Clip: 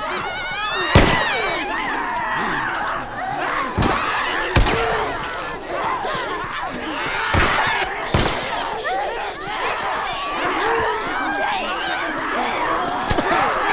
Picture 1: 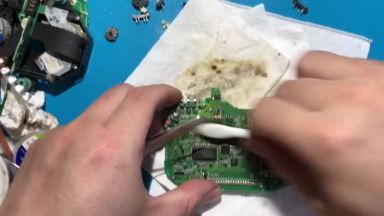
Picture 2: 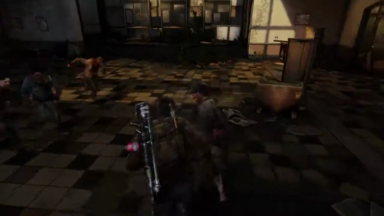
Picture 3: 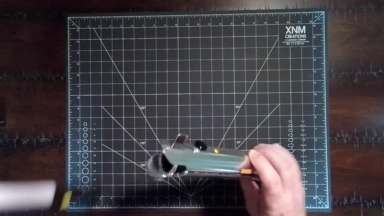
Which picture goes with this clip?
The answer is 2